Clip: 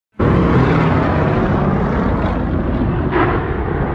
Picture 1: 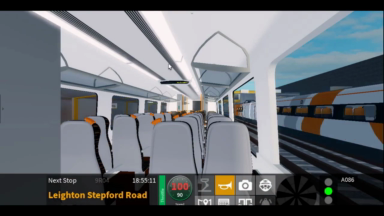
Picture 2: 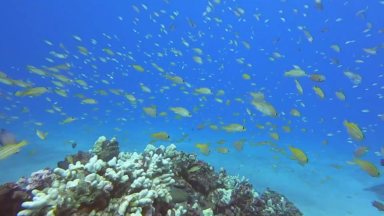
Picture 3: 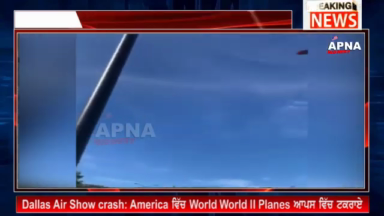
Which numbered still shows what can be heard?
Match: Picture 3